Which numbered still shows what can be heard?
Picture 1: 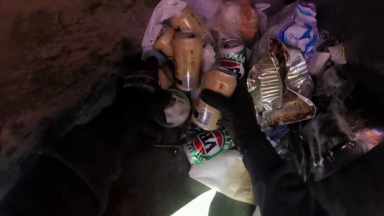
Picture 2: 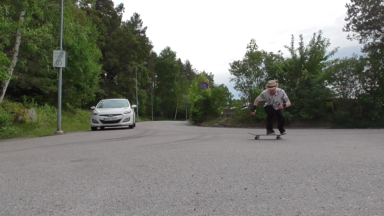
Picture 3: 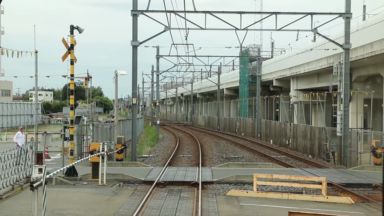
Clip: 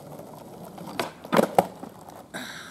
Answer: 2